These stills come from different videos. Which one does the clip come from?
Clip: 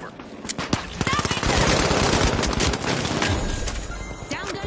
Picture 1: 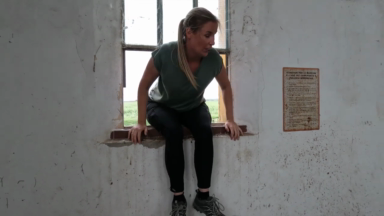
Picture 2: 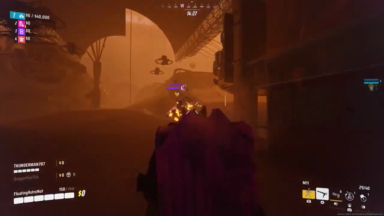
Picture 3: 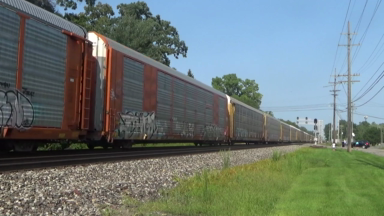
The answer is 2